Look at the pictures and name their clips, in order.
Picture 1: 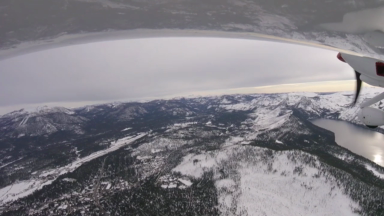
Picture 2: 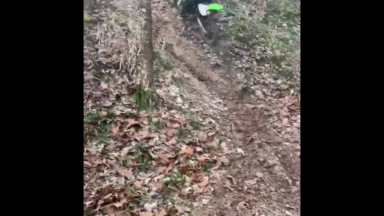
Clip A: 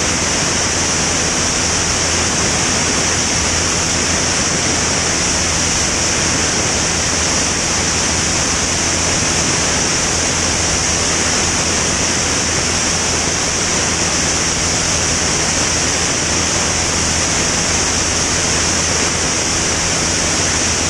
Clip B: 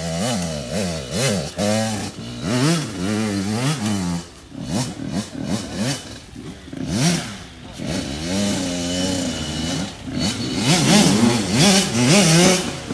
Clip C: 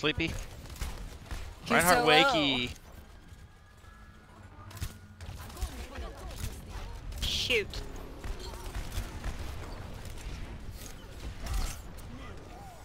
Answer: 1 A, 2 B